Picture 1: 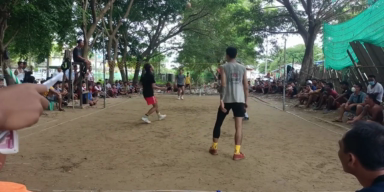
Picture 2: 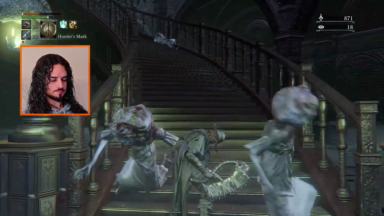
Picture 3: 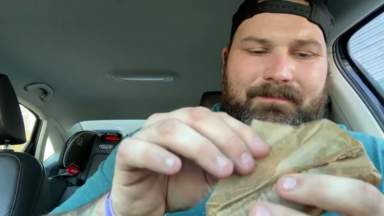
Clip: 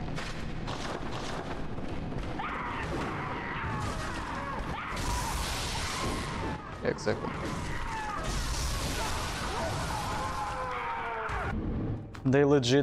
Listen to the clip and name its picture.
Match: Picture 2